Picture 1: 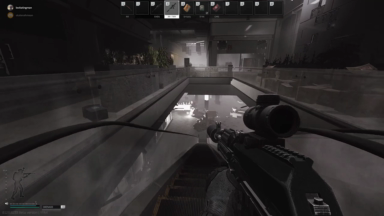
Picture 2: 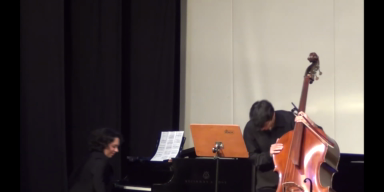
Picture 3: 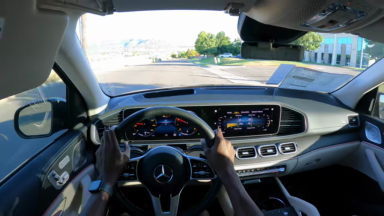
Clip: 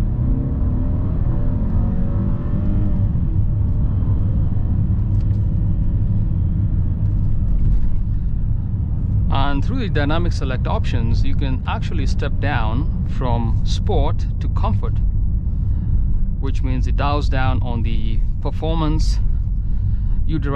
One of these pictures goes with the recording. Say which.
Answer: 3